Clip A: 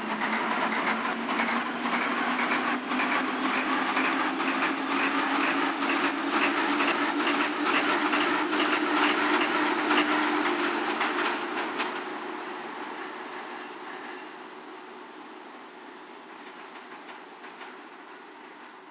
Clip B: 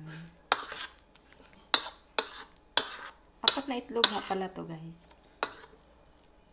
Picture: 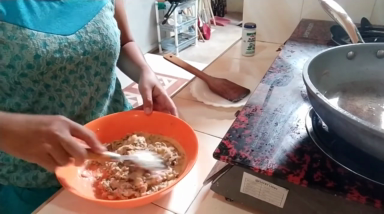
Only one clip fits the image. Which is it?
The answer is B